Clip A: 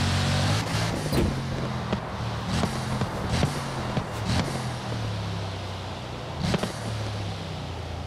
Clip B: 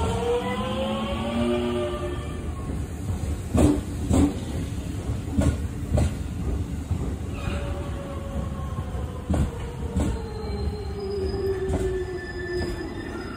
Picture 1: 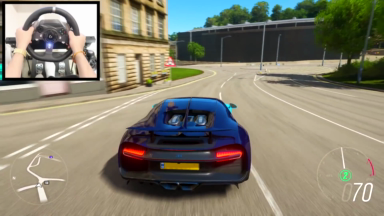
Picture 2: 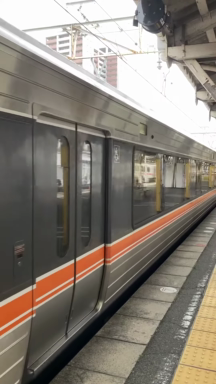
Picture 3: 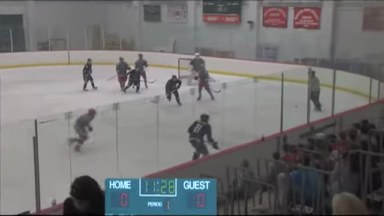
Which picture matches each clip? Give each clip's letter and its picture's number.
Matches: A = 1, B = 2